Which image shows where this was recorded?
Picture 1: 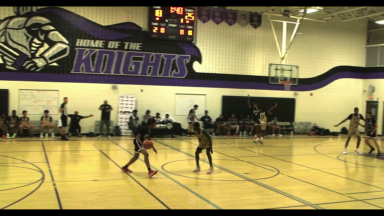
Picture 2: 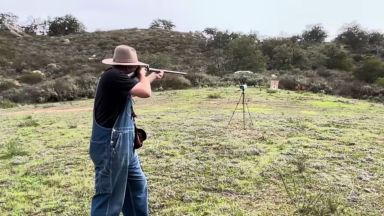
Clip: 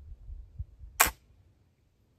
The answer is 2